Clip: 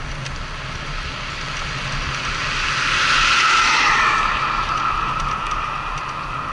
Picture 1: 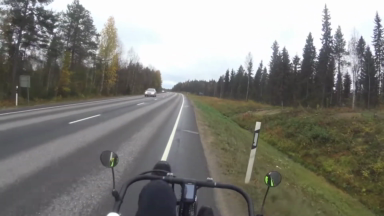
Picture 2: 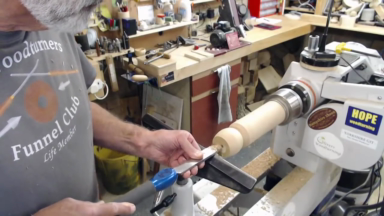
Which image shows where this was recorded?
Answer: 1